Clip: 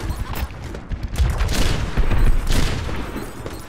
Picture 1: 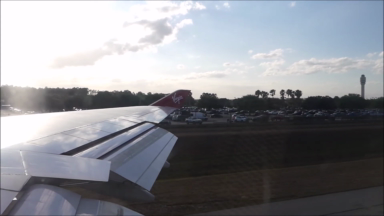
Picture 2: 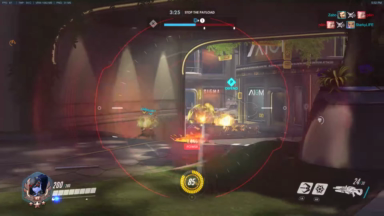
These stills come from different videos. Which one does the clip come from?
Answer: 2